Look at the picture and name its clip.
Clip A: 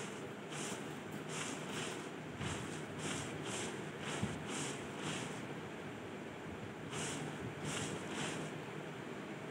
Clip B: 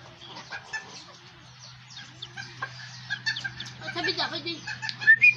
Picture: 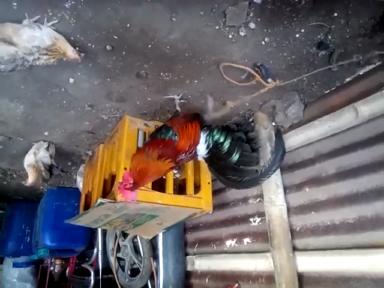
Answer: B